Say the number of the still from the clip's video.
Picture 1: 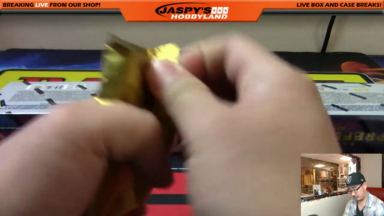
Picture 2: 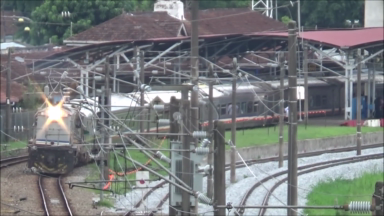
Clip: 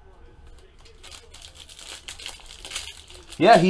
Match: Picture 1